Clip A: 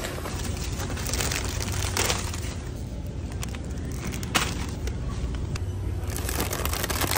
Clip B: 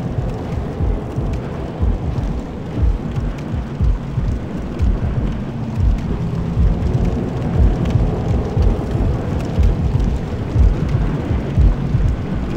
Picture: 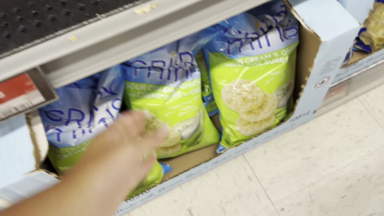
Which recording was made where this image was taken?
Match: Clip A